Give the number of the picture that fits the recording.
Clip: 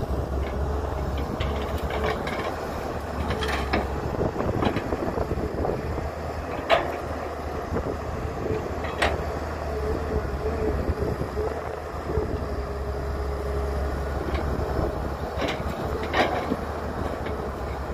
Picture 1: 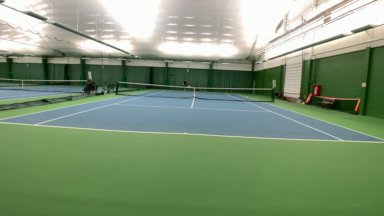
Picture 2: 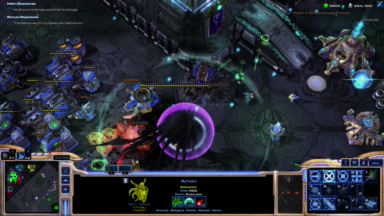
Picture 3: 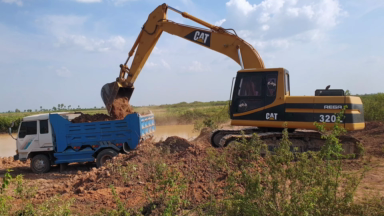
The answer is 3